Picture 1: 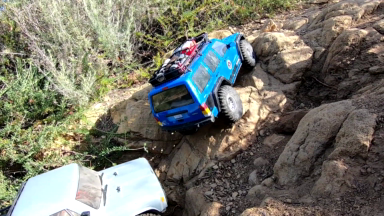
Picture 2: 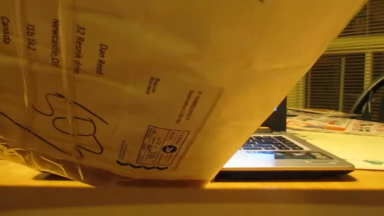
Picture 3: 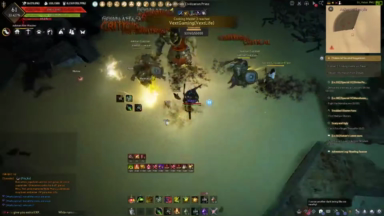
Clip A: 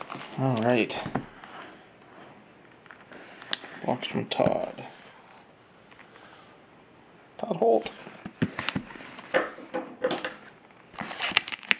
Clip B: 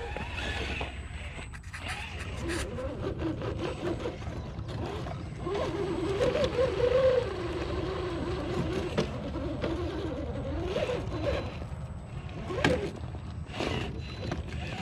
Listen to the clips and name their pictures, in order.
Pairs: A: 2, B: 1